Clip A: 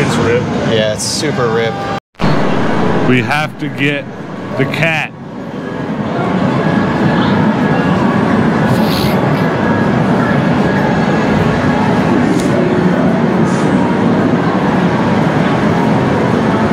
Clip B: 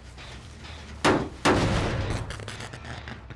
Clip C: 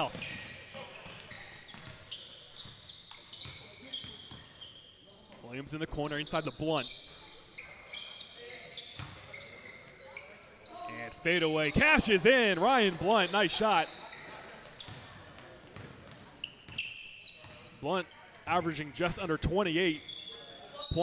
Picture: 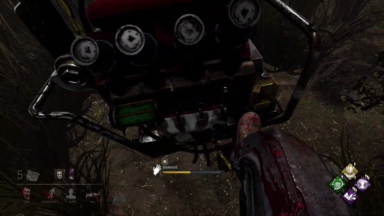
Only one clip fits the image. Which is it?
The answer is B